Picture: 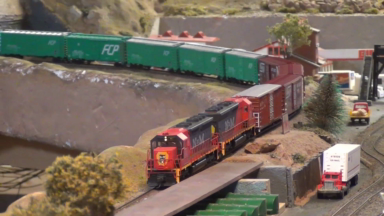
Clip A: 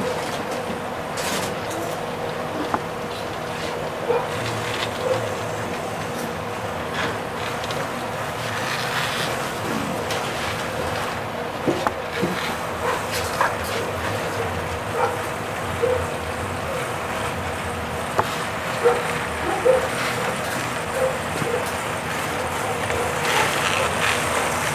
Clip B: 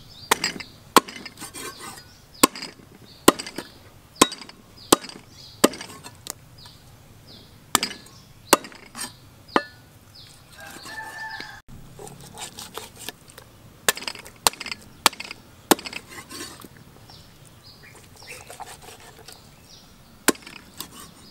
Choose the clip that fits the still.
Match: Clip A